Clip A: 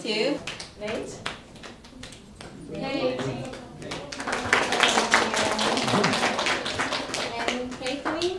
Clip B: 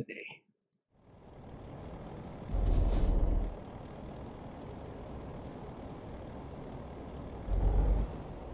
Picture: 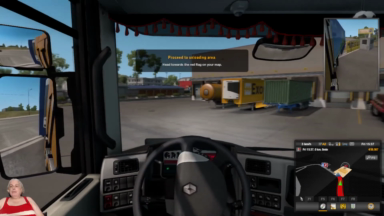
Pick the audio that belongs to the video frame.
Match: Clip B